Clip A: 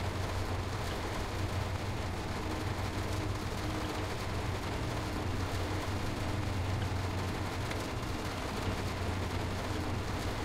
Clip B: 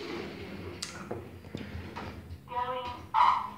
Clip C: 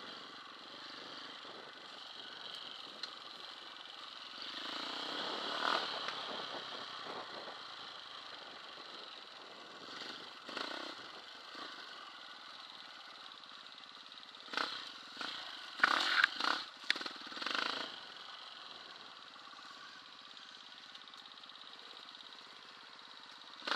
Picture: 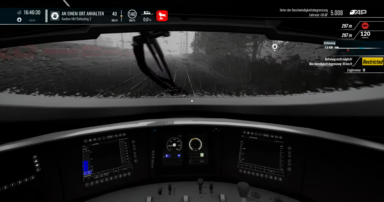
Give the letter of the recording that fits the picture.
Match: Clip A